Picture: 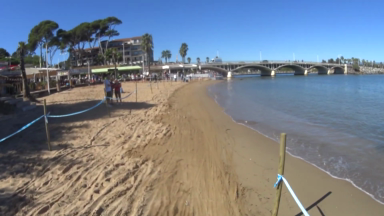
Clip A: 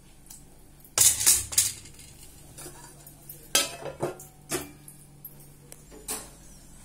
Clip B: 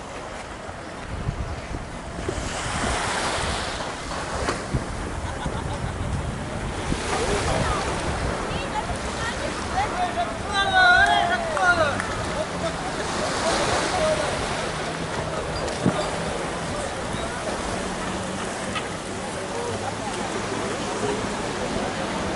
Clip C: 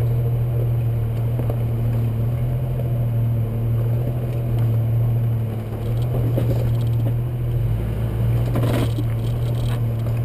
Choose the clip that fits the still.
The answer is B